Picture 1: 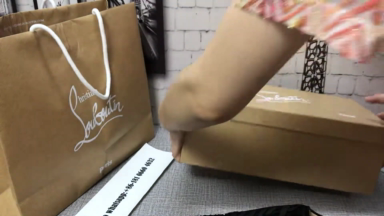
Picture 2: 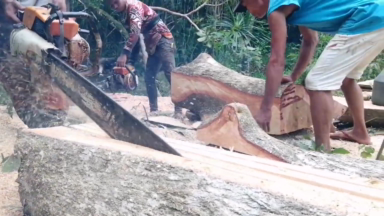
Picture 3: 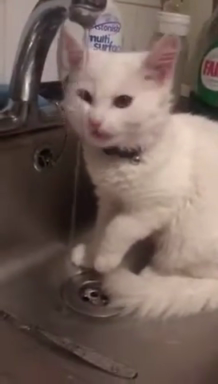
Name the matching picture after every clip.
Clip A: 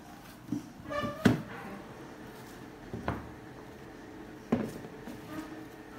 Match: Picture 1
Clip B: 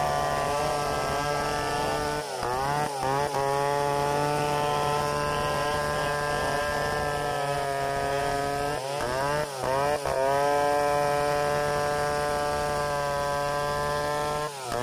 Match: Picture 2